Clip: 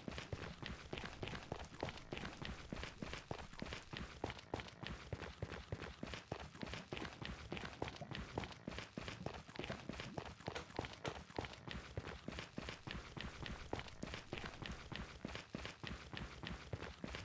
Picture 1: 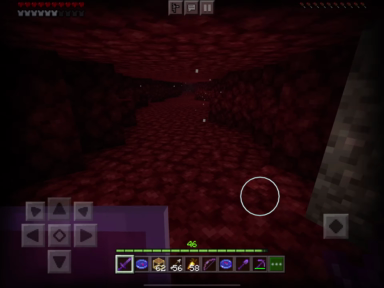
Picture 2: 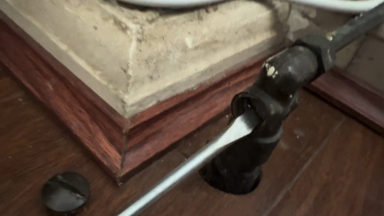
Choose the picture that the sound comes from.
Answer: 1